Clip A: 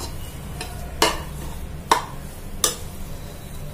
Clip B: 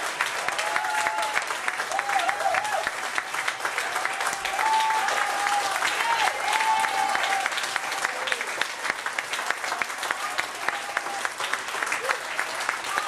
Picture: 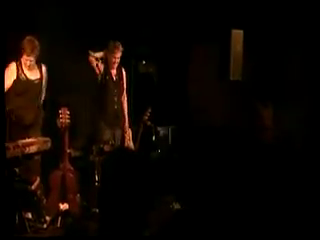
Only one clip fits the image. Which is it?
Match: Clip B